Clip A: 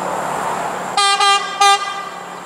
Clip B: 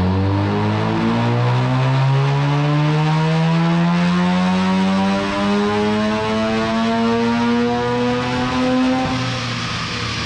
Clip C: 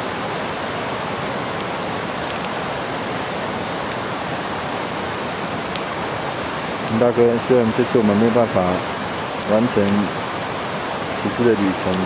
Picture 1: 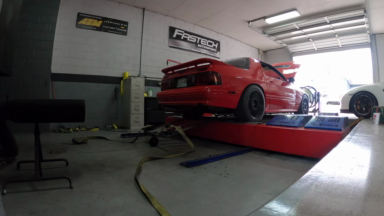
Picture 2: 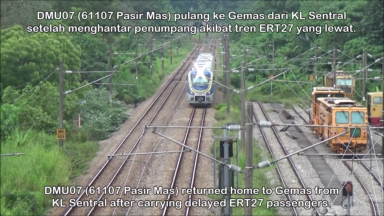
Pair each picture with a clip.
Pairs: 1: B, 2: A